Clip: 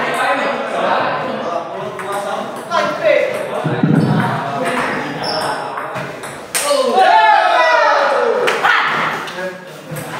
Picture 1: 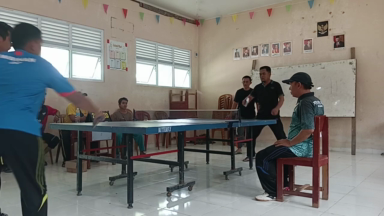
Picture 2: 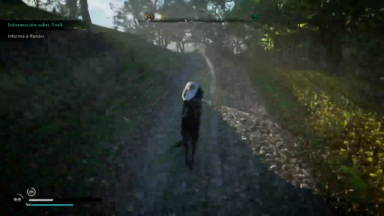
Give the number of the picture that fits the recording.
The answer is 1